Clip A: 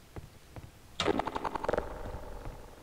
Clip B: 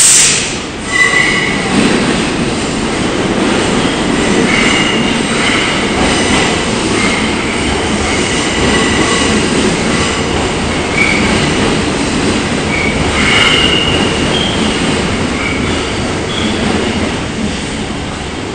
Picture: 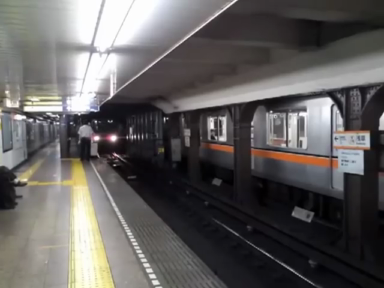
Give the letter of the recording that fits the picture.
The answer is B